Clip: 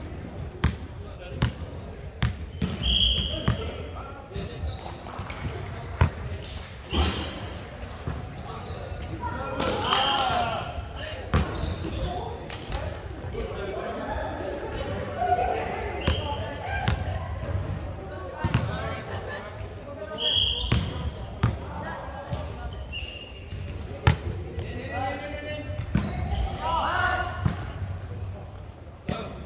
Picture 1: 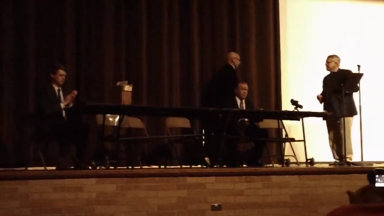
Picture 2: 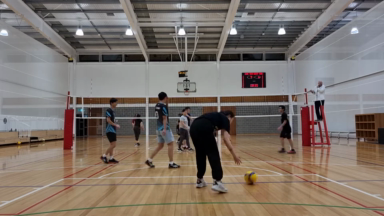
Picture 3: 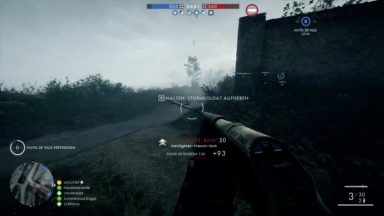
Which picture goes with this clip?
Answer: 2